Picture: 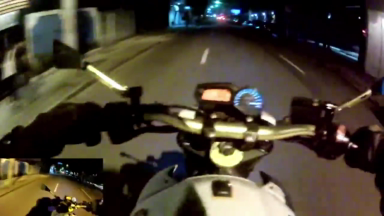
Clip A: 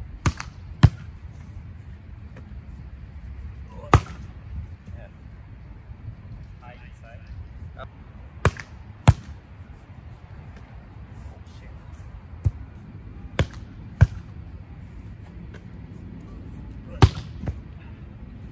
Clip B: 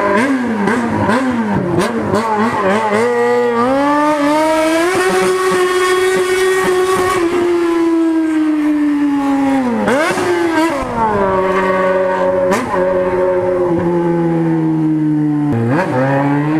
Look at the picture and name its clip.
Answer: B